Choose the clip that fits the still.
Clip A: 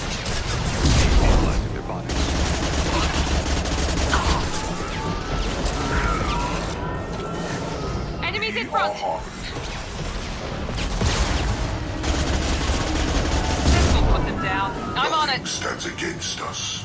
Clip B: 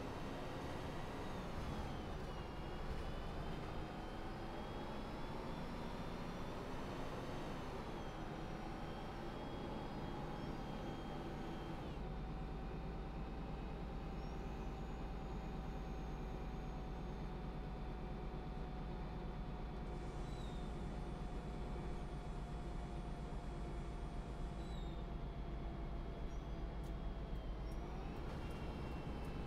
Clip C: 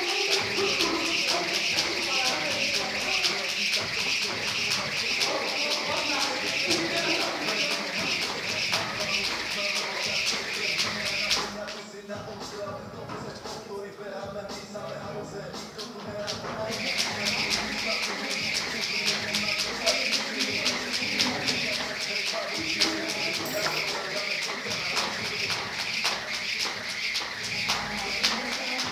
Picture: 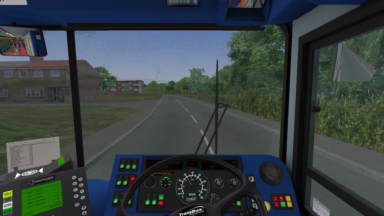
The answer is B